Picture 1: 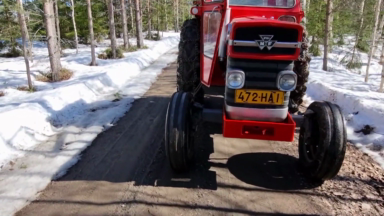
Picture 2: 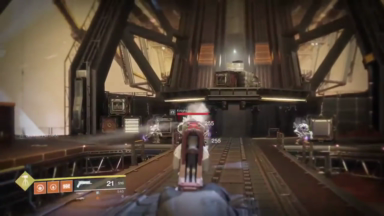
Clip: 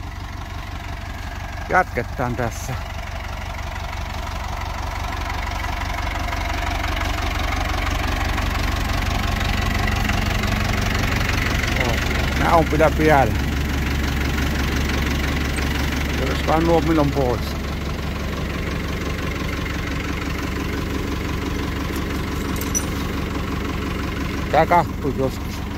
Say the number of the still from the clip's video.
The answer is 1